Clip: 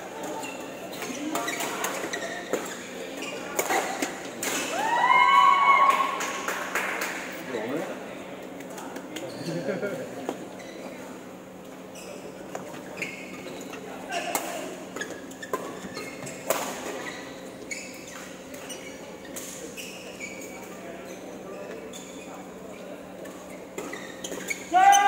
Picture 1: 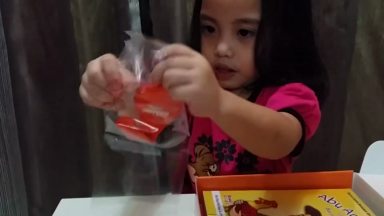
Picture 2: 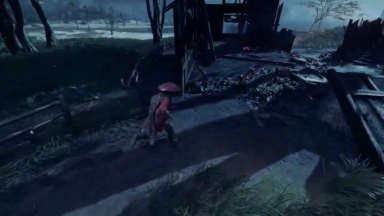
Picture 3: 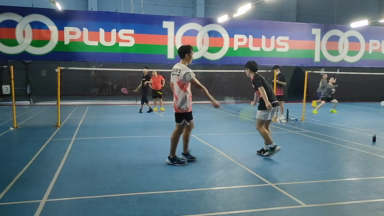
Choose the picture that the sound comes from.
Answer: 3